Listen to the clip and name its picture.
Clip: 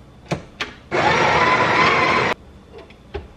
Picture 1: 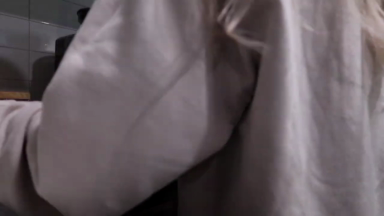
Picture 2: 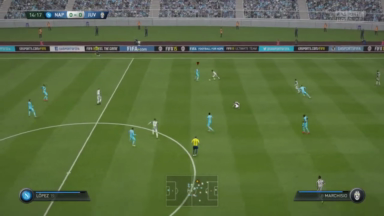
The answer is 1